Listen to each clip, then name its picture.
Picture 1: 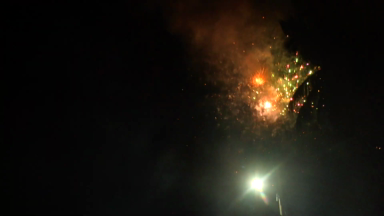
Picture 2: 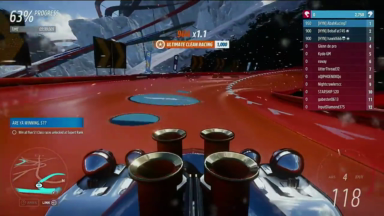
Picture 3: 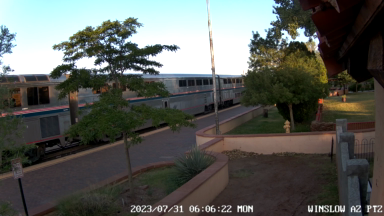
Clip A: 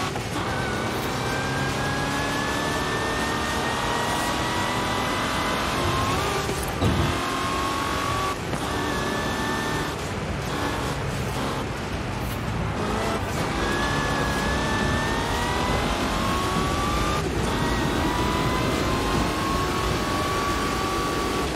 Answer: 2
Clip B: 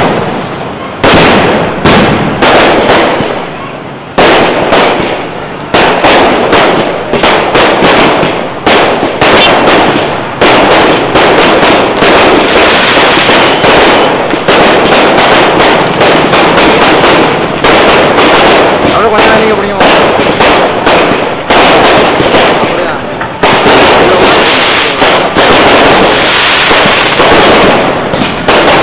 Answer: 1